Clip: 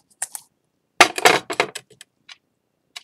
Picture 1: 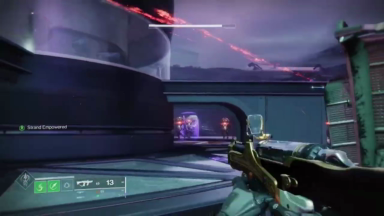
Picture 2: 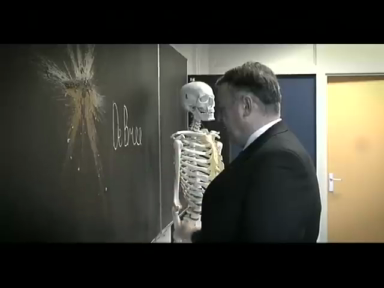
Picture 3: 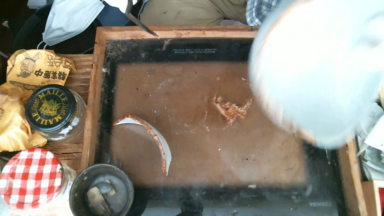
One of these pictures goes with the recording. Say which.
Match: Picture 3